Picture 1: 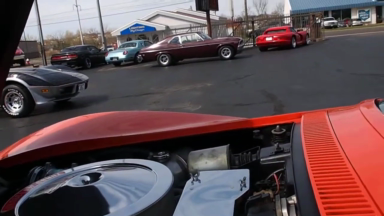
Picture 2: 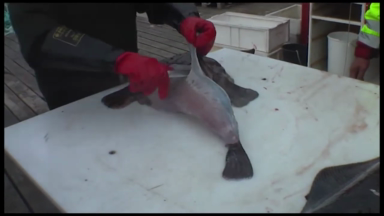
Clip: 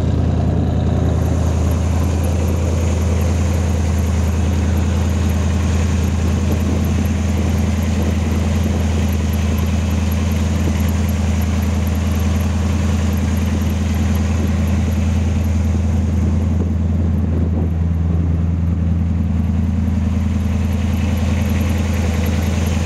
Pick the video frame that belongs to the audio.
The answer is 1